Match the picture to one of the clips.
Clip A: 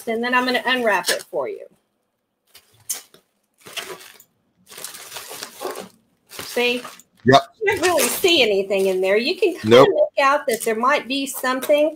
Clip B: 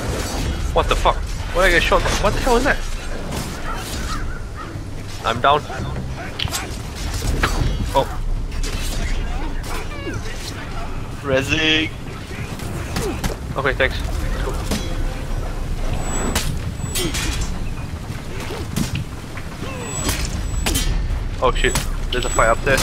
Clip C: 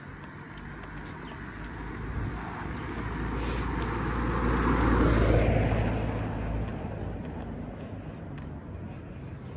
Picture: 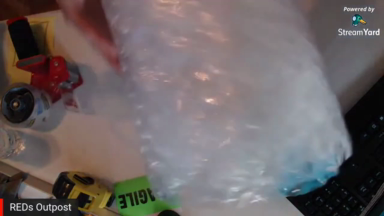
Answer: A